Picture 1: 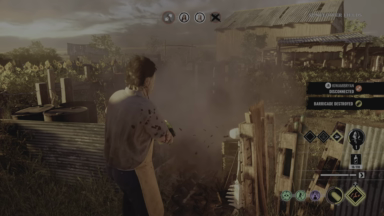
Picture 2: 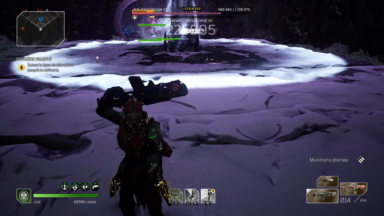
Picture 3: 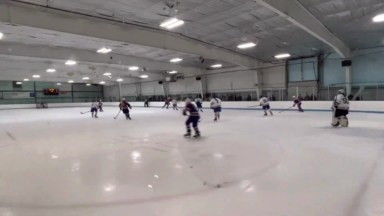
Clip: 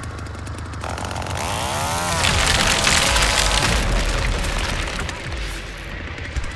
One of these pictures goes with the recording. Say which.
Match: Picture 1